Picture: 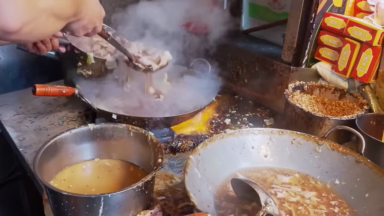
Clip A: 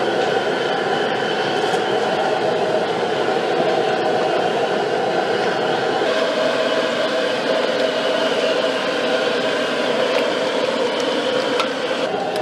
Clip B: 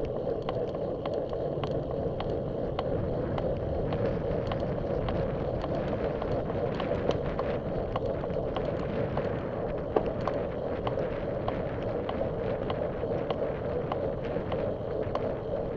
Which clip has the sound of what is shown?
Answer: A